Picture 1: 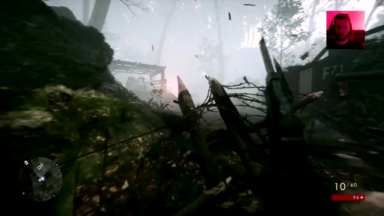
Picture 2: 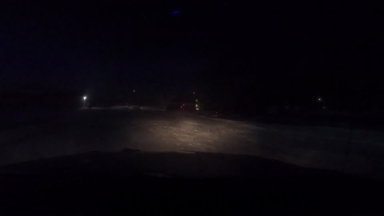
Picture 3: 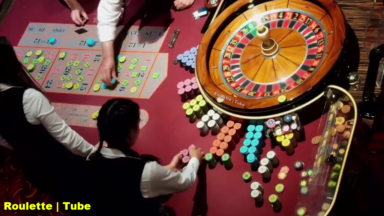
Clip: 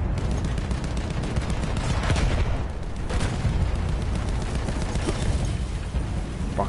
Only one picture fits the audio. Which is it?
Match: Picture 1